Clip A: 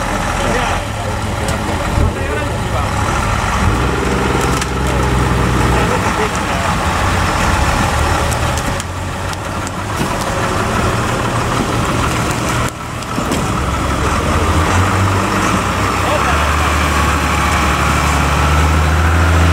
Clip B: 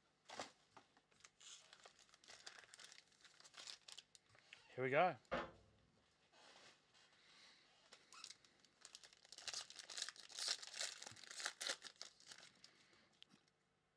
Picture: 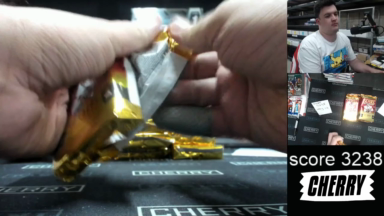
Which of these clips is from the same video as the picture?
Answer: B